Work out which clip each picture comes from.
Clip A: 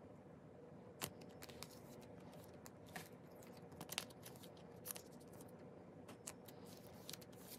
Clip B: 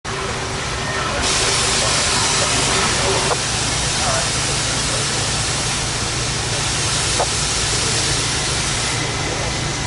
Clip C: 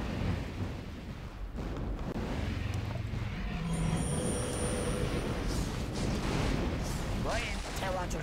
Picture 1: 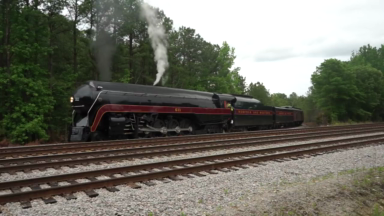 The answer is B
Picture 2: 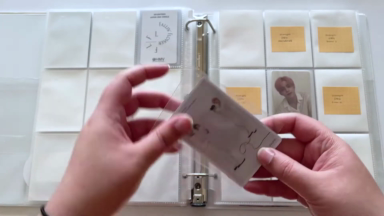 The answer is A